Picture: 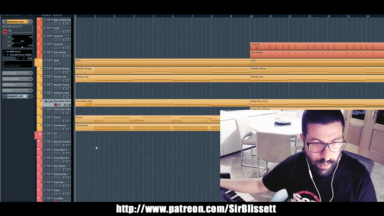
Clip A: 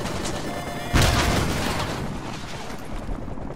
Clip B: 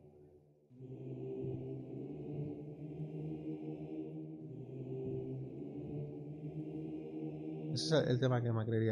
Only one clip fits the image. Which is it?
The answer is B